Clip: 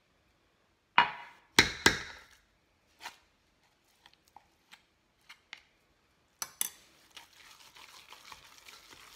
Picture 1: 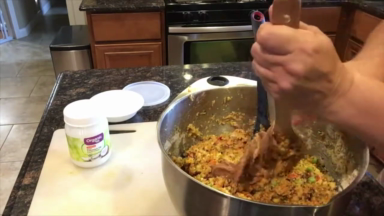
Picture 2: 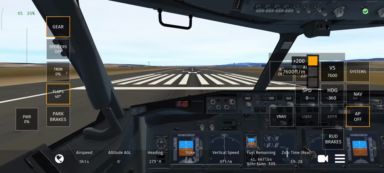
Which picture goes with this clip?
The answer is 1